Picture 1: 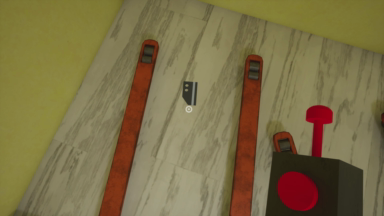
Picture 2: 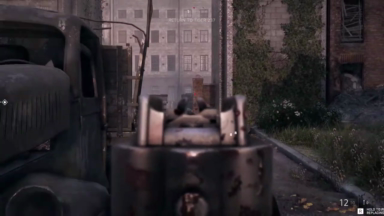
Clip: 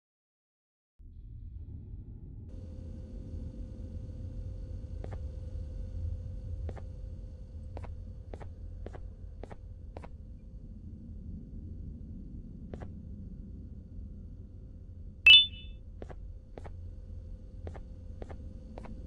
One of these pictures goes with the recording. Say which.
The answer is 1